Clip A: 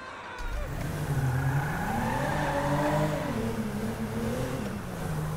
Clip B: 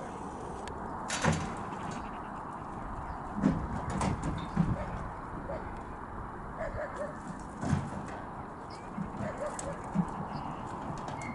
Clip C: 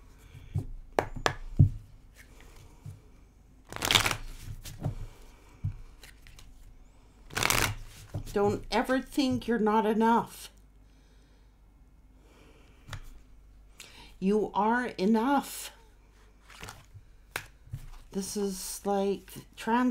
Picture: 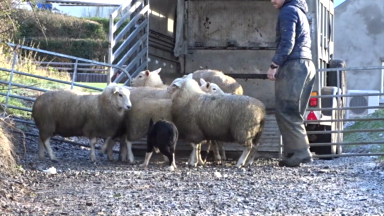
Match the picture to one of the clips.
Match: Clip B